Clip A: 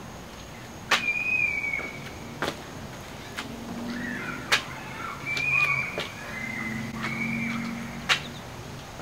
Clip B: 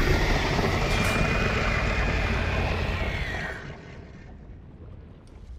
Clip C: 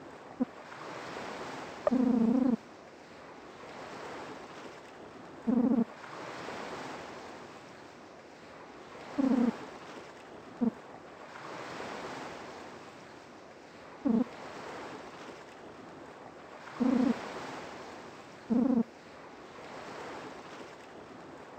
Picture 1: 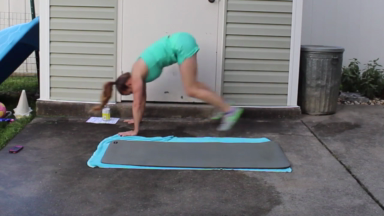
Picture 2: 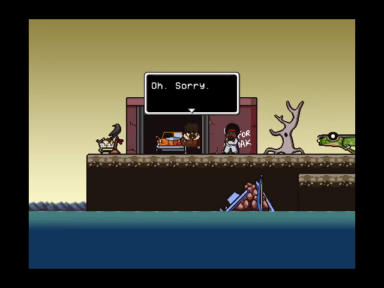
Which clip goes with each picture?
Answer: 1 A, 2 C